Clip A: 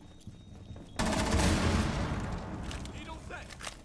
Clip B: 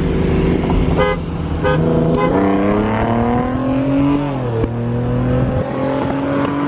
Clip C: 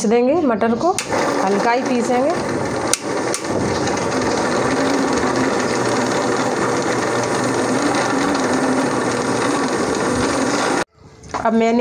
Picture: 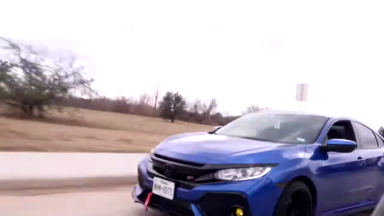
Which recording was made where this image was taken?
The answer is B